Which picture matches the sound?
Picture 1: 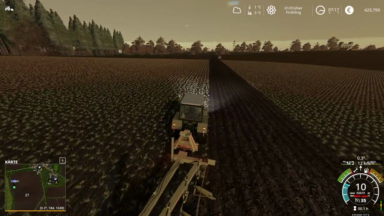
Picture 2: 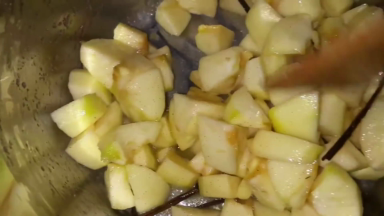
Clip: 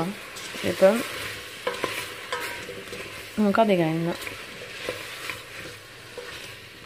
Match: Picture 2